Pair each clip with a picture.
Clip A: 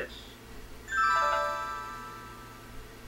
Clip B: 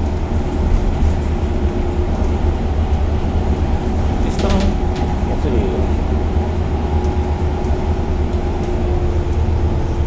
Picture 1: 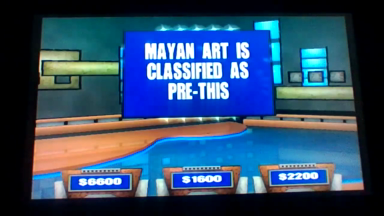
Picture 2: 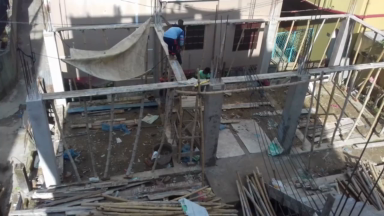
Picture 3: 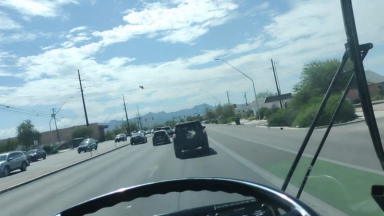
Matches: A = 1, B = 3